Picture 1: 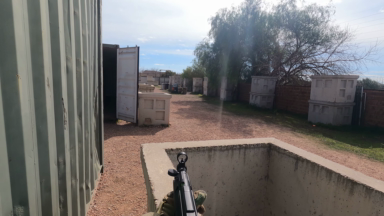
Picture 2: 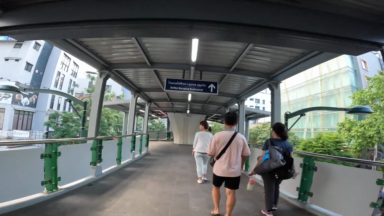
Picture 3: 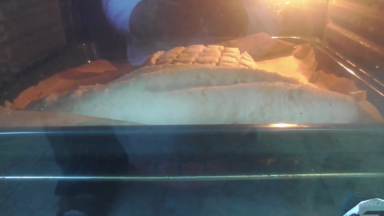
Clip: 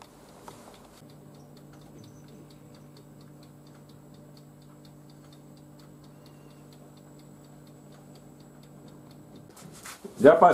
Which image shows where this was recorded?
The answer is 3